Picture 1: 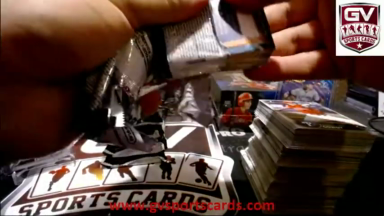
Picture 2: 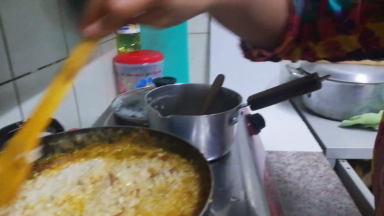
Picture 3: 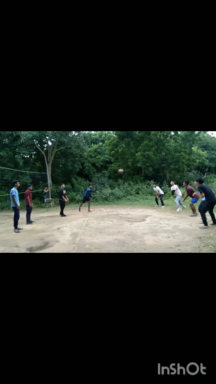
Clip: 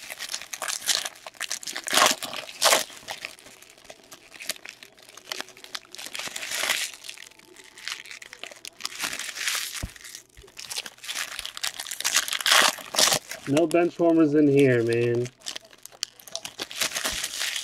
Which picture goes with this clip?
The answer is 1